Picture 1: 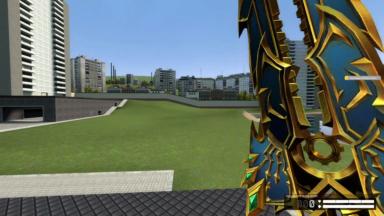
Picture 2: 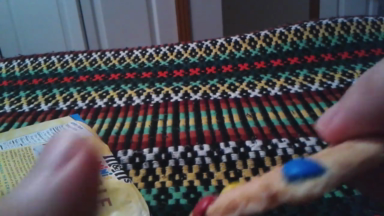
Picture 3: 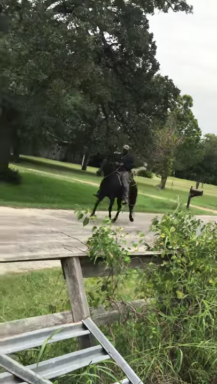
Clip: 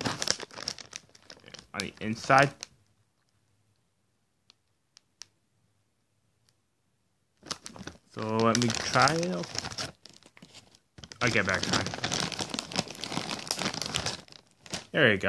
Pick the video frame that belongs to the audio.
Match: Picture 2